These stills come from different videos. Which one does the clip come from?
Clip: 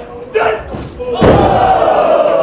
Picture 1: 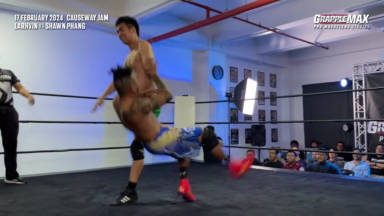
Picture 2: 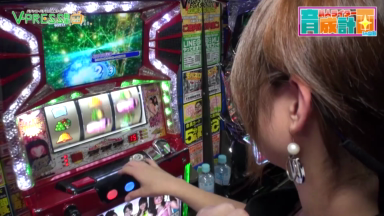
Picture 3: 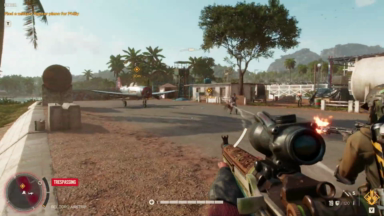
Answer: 1